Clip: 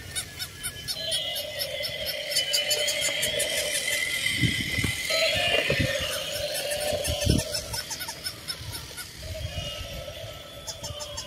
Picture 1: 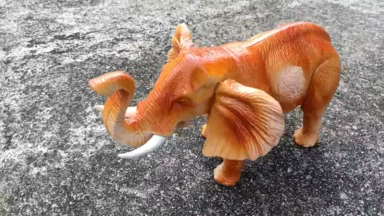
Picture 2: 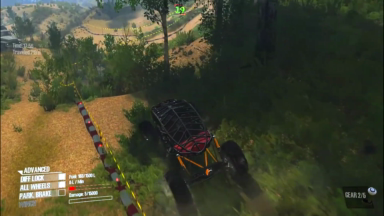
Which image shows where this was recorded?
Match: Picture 1